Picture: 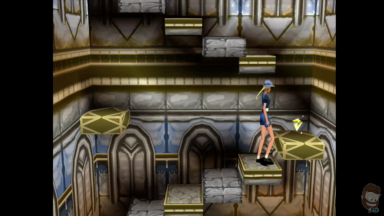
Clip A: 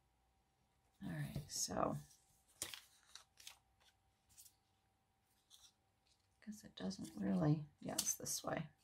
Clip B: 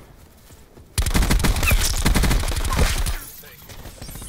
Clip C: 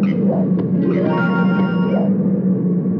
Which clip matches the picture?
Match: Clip C